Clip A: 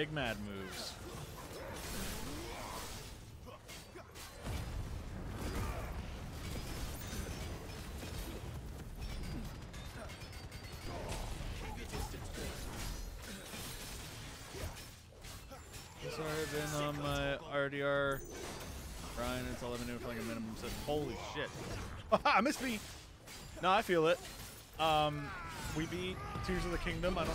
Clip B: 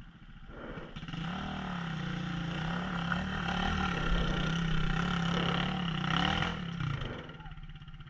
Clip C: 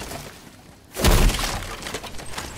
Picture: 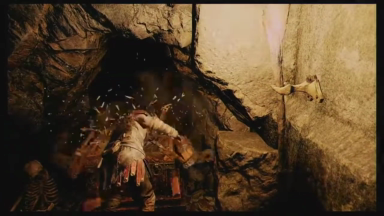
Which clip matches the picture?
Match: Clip C